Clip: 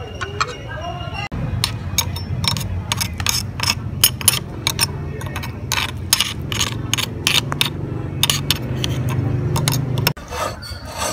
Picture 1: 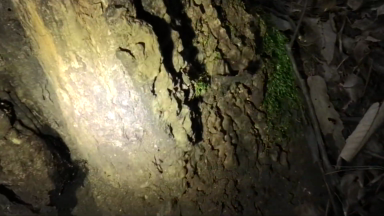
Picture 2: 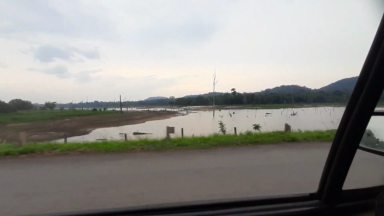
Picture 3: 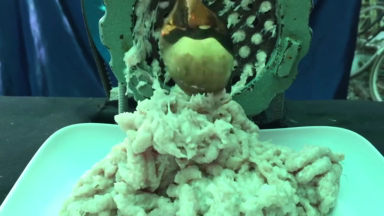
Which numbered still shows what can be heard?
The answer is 3